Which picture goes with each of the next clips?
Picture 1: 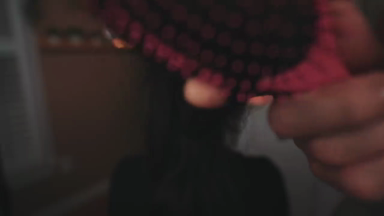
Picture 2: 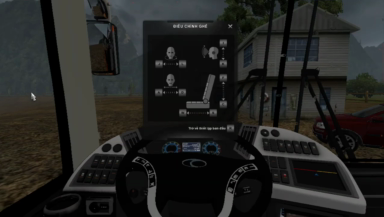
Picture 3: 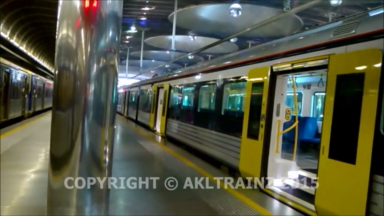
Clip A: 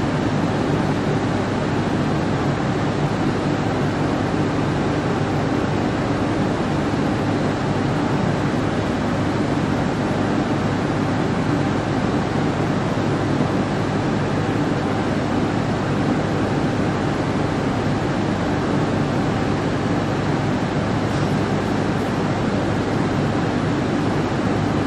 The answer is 3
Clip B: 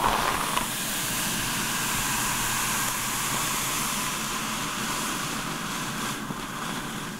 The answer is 1